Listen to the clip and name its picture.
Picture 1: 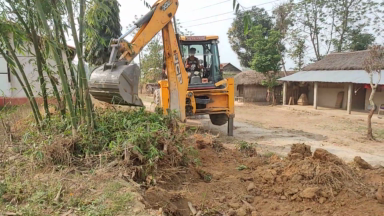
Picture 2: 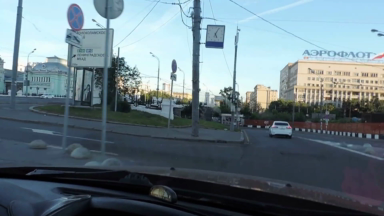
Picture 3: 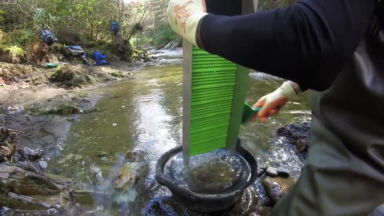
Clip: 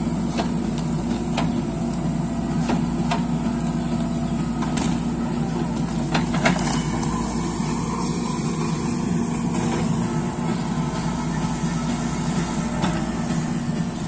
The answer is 1